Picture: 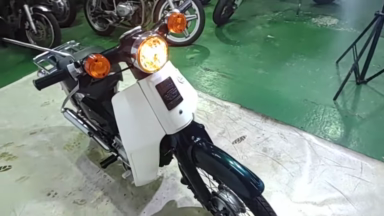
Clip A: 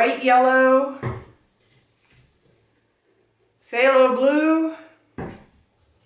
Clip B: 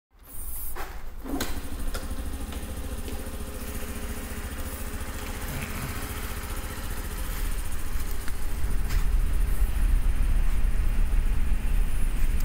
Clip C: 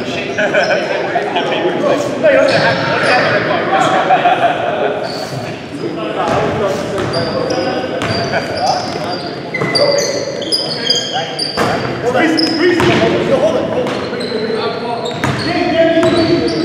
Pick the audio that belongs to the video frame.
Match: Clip B